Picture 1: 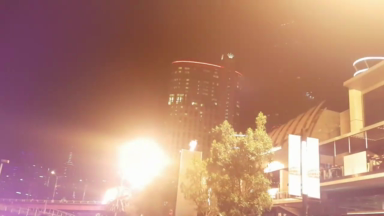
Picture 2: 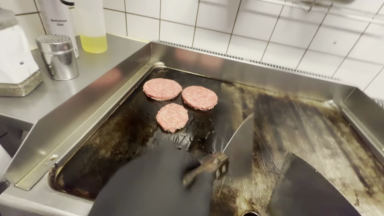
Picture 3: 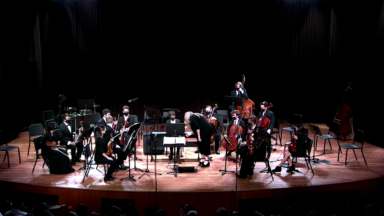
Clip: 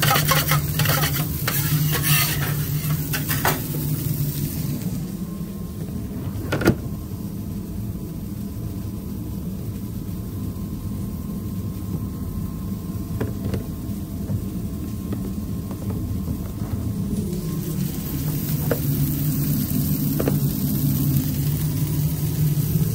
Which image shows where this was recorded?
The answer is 2